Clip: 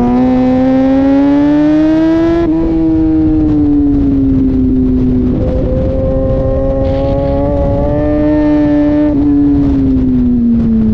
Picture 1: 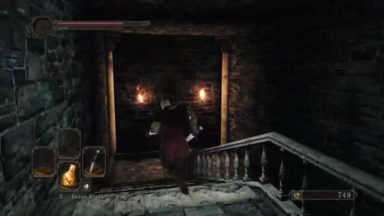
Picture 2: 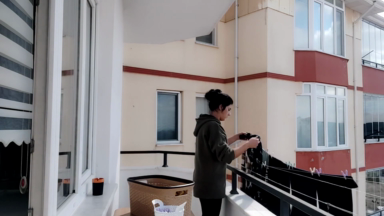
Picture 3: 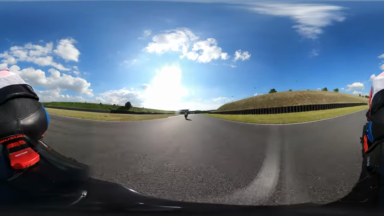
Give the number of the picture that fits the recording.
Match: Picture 3